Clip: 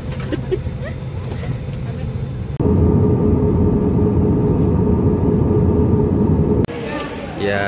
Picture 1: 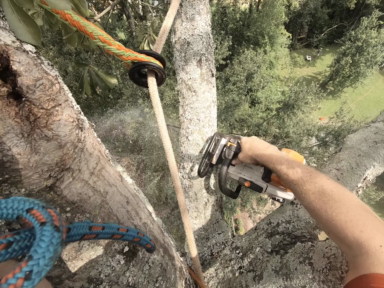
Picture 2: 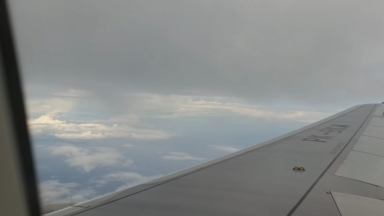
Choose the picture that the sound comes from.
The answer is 2